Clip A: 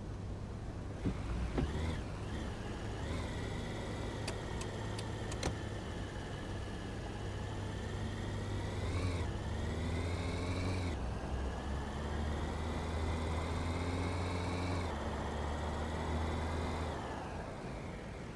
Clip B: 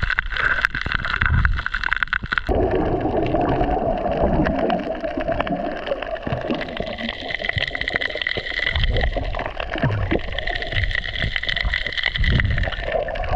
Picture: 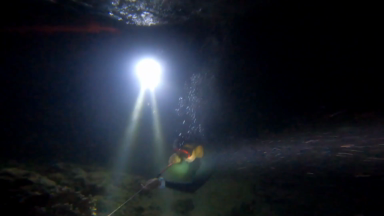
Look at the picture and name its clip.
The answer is B